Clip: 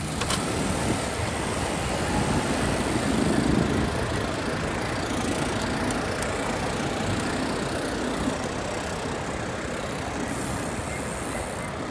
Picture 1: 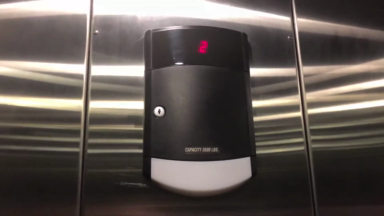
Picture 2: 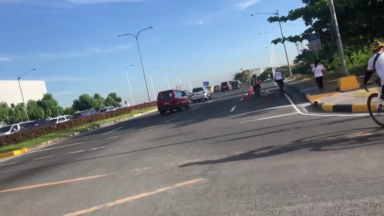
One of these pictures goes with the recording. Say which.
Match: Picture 2